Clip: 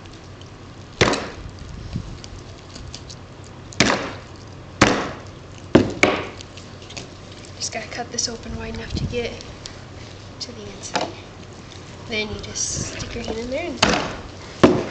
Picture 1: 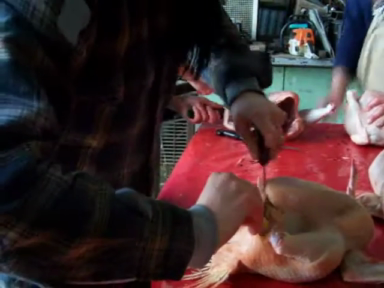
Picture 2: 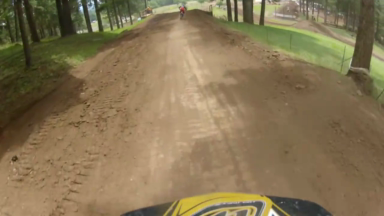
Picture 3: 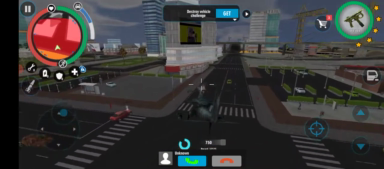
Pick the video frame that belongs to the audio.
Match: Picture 1